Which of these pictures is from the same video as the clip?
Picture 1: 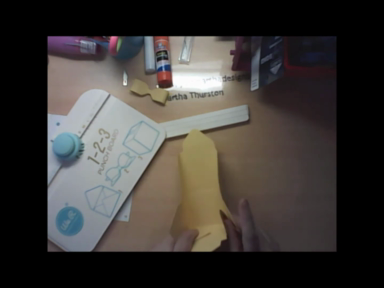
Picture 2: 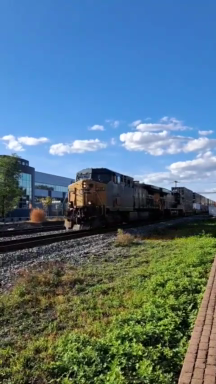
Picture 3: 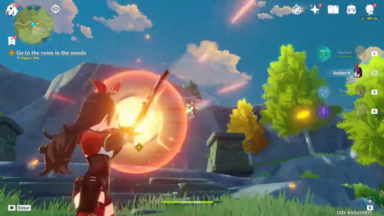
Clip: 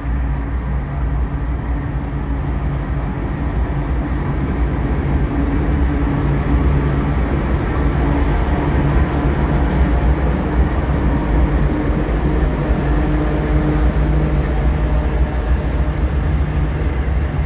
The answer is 2